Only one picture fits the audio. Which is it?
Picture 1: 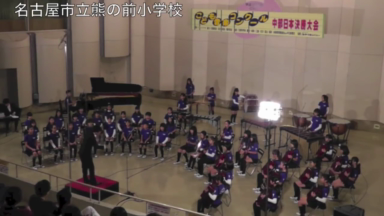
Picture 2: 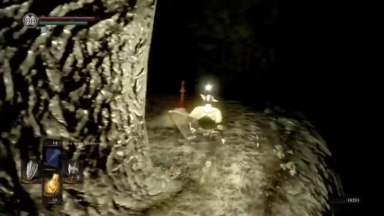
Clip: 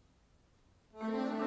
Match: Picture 1